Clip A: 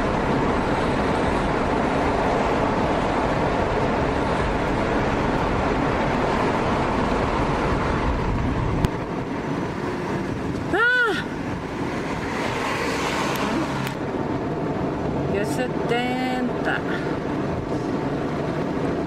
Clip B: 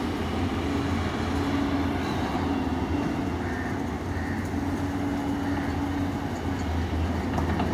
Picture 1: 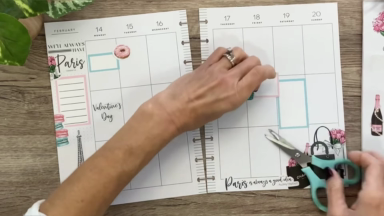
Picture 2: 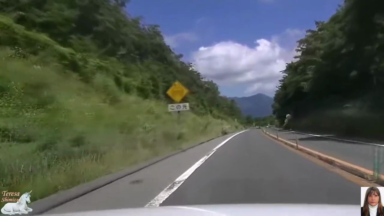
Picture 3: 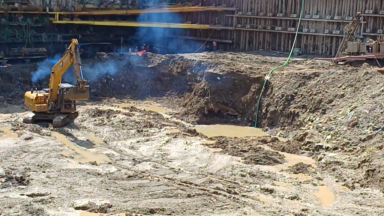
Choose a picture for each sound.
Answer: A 2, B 3